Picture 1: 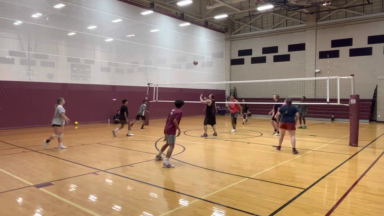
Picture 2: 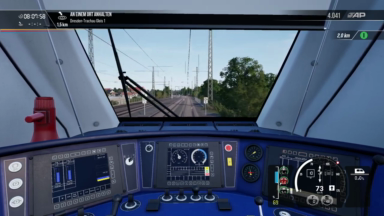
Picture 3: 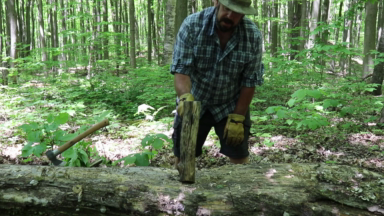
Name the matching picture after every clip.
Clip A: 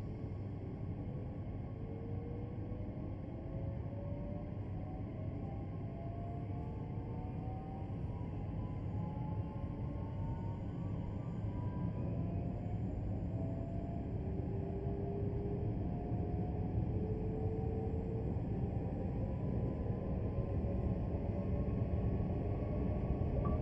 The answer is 2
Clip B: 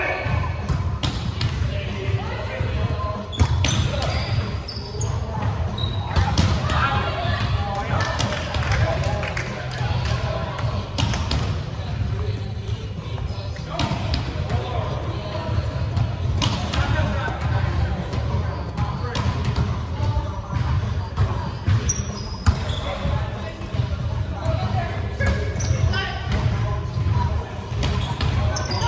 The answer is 1